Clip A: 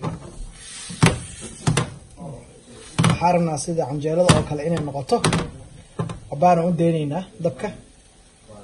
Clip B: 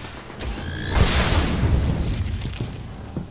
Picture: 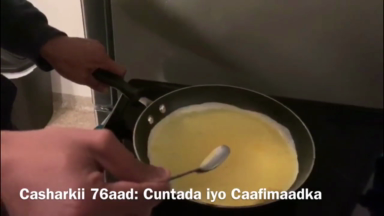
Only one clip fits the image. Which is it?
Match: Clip A